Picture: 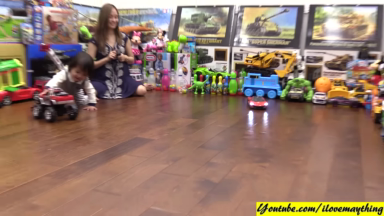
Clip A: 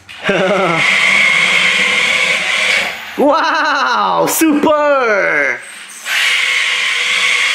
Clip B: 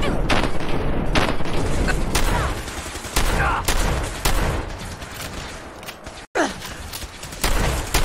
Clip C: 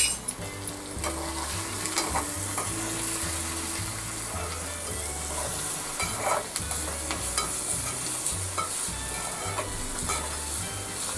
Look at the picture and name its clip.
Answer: A